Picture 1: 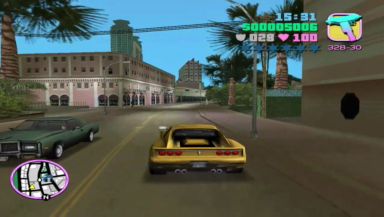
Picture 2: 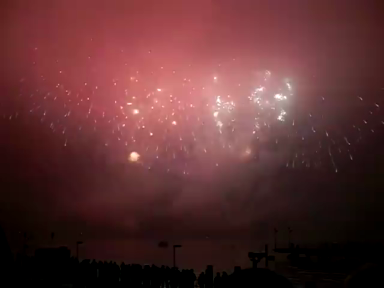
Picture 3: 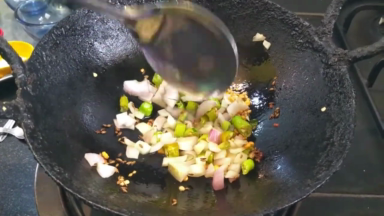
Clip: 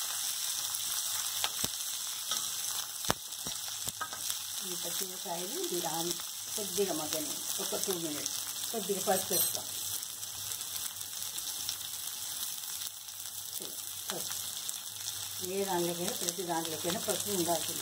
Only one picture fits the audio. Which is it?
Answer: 3